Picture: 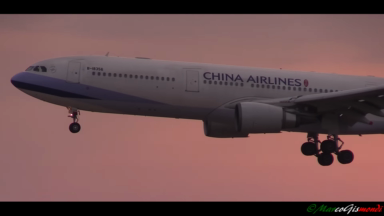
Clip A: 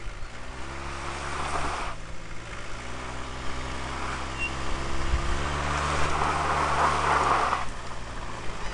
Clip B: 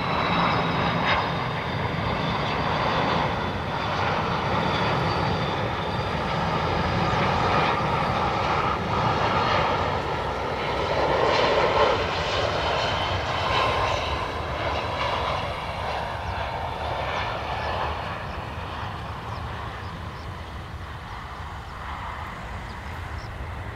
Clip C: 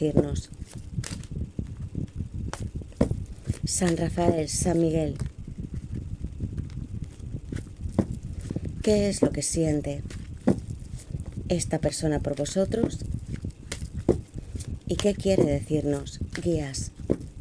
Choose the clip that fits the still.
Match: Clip B